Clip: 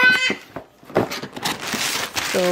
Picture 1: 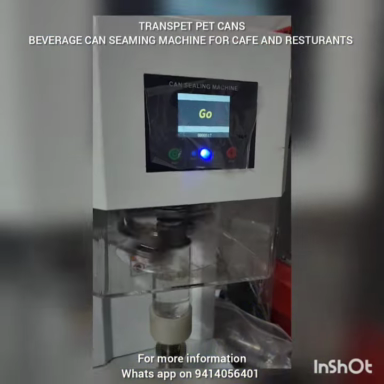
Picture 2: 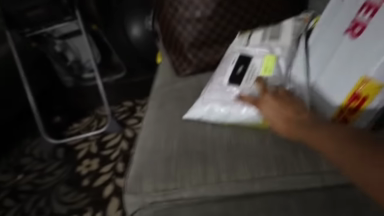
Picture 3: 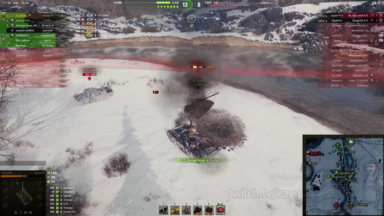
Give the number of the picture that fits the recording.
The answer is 2